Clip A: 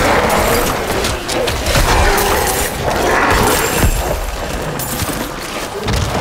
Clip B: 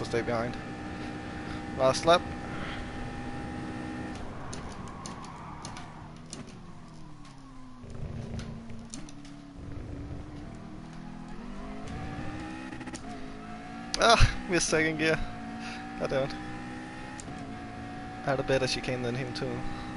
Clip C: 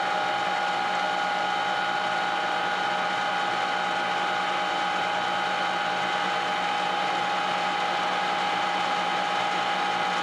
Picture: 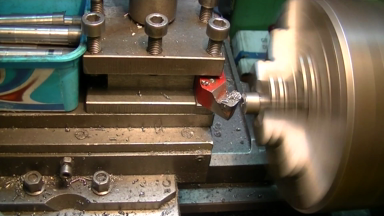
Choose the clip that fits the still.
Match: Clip C